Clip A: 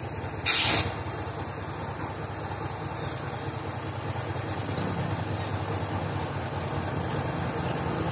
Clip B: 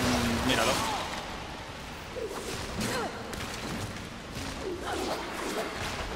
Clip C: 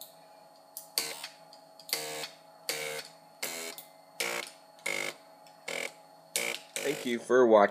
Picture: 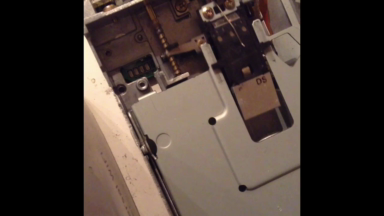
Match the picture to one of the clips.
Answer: C